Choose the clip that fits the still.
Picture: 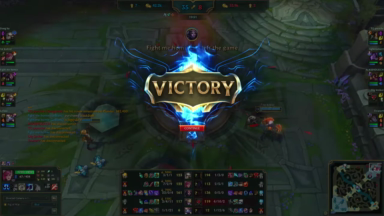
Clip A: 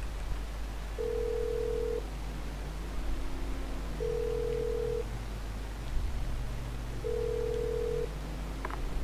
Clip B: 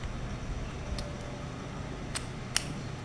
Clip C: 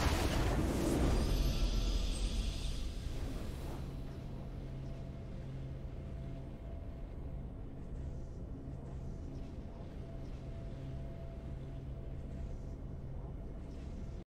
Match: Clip C